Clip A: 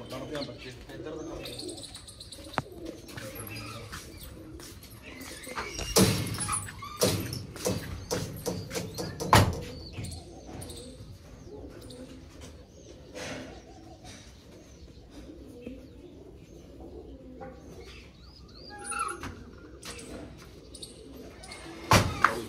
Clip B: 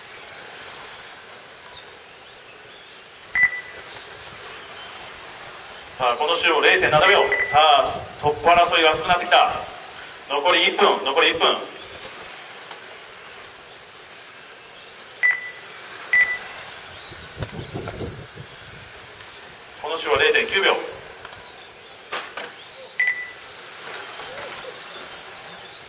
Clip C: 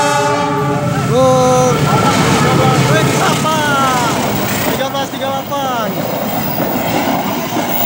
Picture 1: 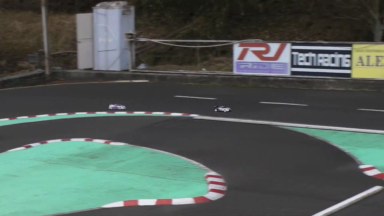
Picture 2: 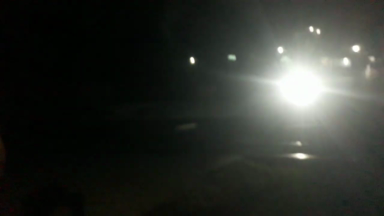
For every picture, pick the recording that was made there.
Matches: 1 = B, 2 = C